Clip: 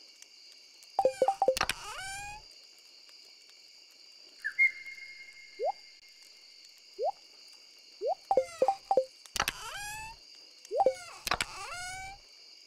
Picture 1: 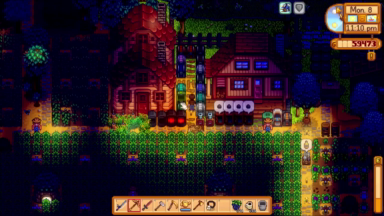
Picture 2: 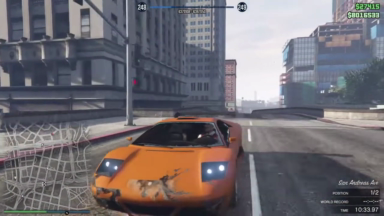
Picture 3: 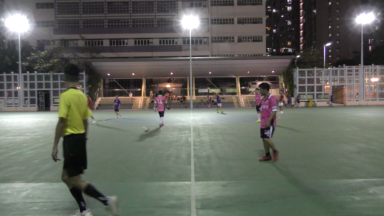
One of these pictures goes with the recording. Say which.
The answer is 1